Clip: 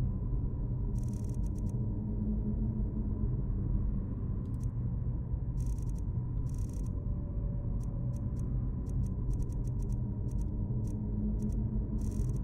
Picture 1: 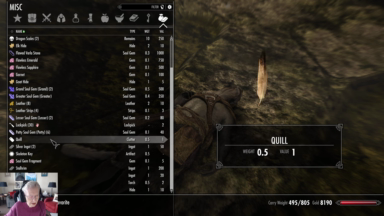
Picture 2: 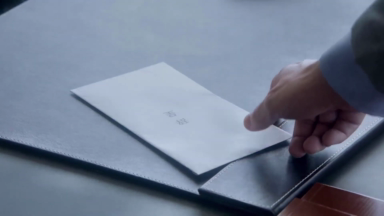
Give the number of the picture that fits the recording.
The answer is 1